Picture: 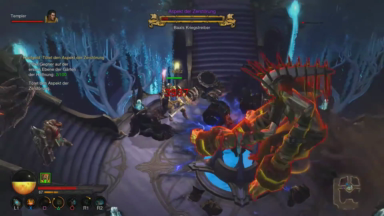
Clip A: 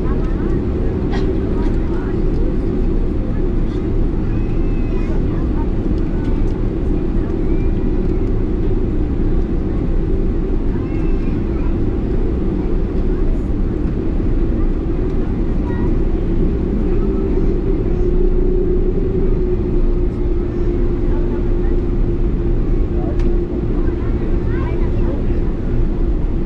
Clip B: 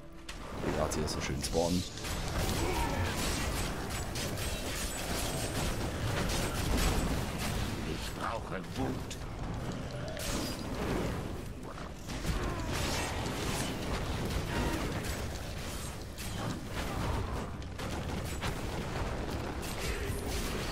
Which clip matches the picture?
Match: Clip B